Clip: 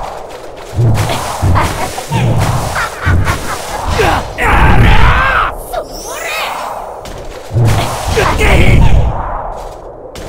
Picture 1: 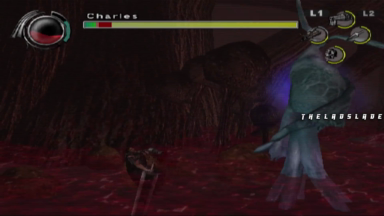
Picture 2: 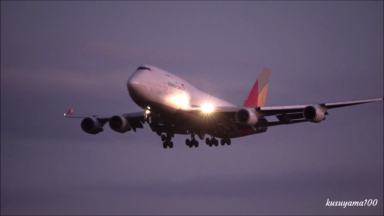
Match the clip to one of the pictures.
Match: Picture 1